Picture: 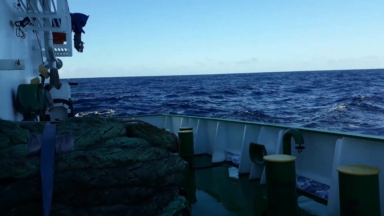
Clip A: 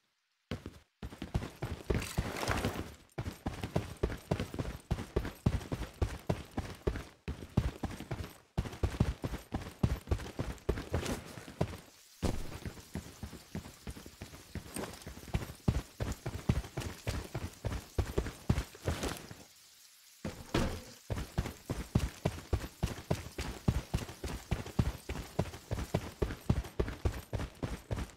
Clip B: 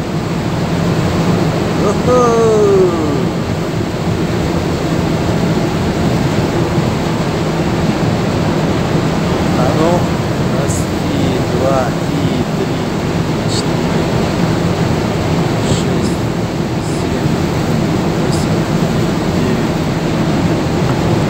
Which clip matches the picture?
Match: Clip B